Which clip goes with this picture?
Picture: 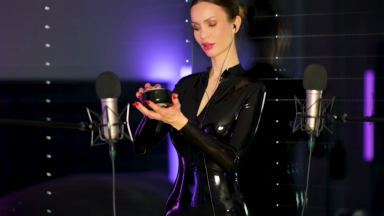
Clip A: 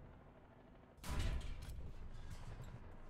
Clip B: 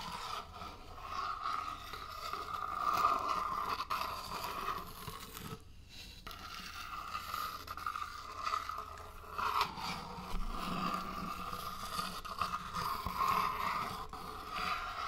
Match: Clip B